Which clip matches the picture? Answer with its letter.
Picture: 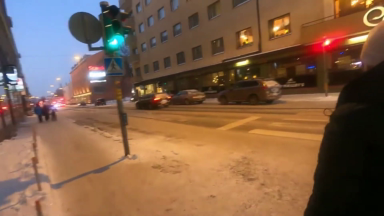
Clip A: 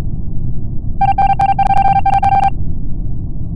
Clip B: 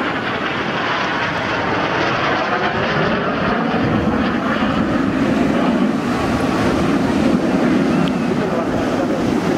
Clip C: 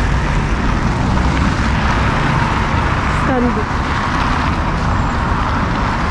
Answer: C